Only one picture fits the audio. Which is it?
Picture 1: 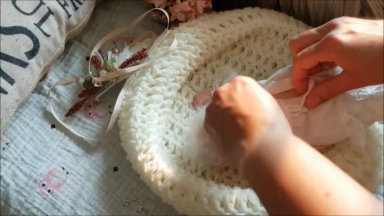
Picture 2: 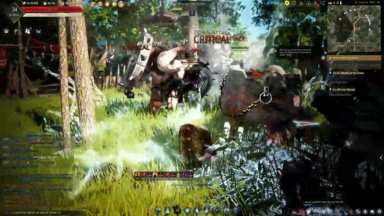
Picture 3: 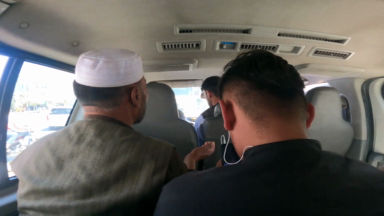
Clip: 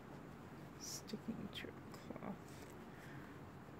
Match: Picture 1